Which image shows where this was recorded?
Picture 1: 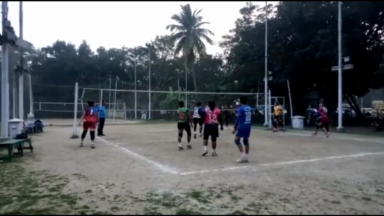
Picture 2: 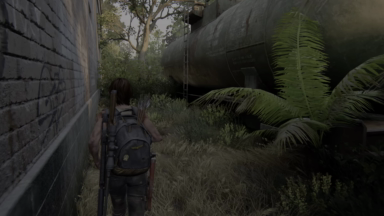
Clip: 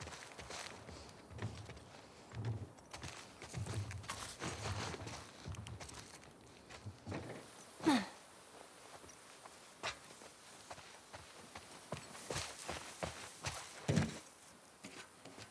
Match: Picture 2